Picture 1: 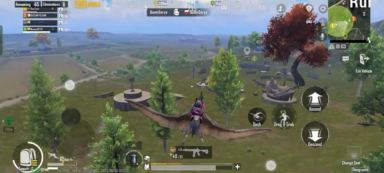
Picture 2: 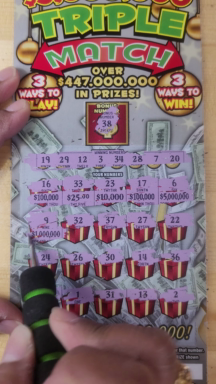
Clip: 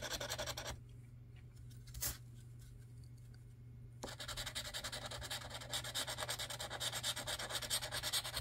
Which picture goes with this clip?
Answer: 2